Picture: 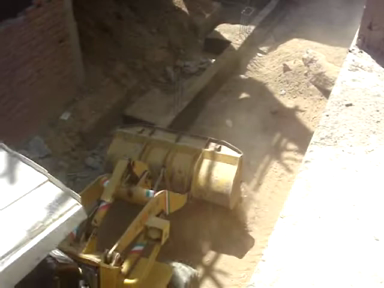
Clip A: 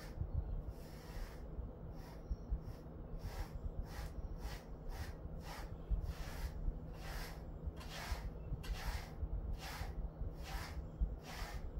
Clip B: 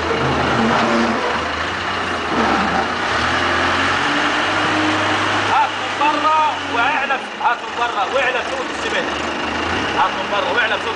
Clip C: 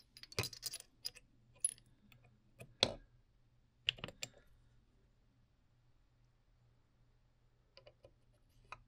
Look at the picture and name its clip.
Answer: B